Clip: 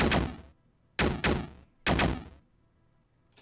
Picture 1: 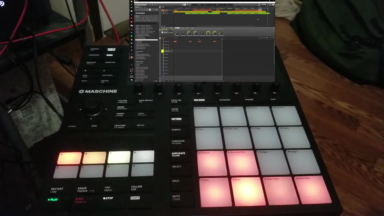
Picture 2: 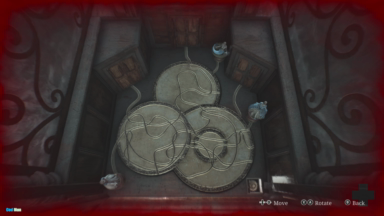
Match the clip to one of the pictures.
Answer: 1